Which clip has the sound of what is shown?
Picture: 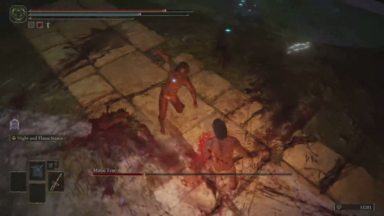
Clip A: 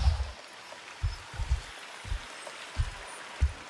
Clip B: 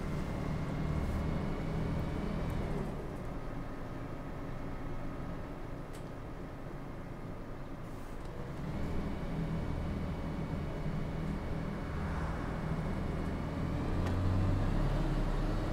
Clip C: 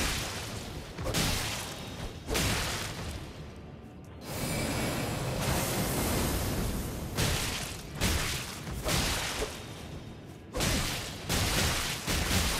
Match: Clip C